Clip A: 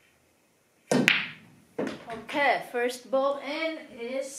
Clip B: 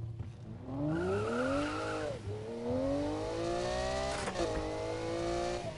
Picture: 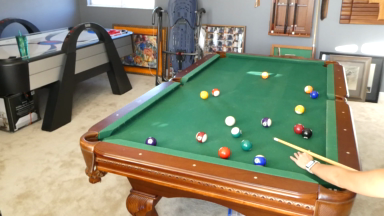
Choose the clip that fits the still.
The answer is A